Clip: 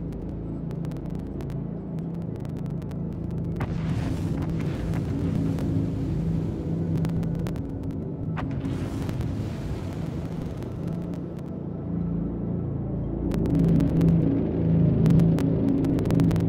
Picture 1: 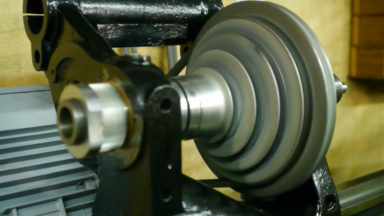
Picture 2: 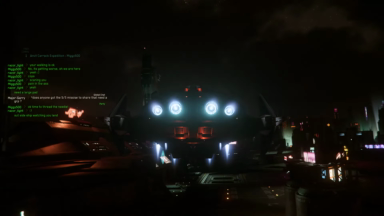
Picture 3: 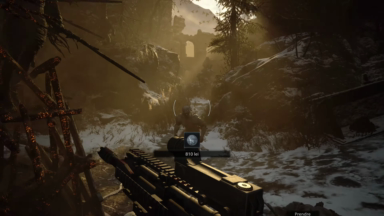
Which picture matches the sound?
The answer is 2